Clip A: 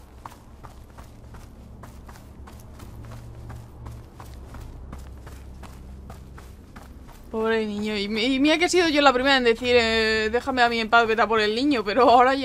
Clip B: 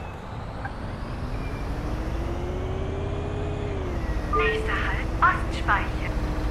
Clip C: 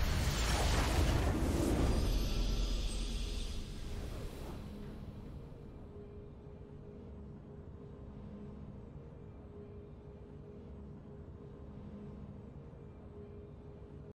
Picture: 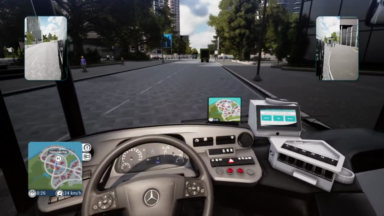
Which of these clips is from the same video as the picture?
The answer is B